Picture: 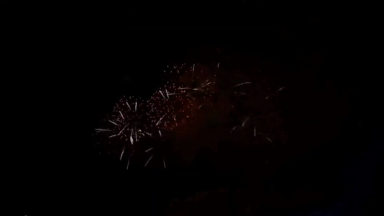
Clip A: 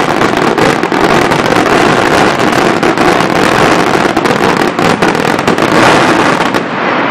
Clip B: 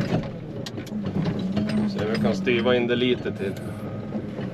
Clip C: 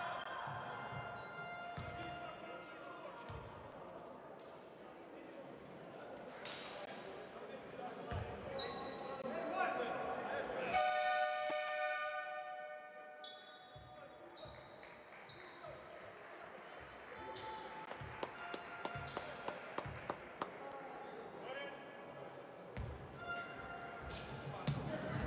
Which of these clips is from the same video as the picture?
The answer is A